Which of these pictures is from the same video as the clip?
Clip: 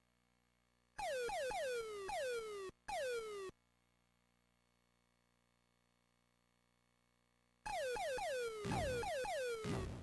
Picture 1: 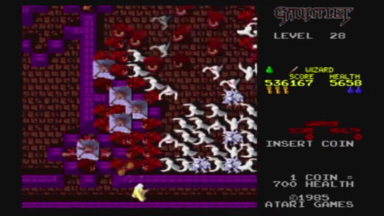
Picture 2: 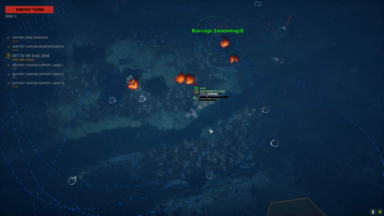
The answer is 1